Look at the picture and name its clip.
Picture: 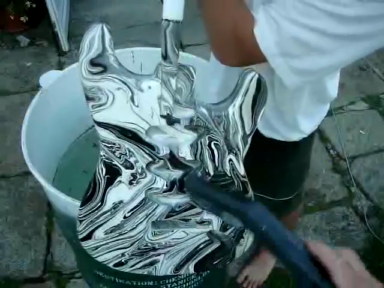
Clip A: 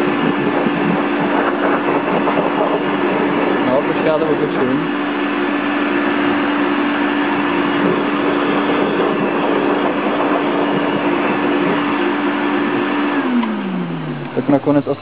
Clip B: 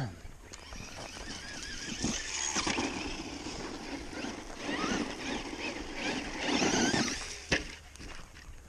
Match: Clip A